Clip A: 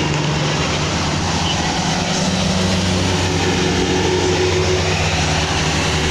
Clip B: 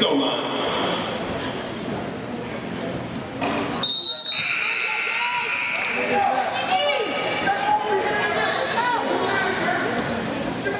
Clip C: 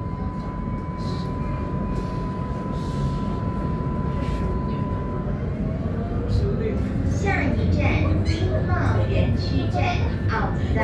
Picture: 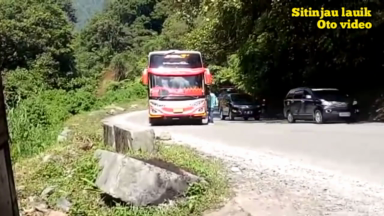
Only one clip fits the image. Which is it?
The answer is A